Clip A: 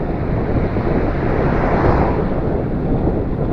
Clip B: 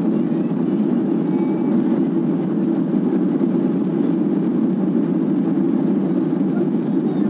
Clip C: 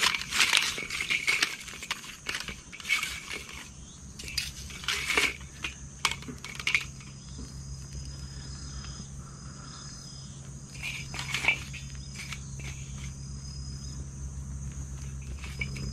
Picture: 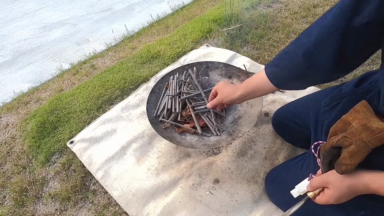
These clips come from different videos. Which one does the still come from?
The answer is C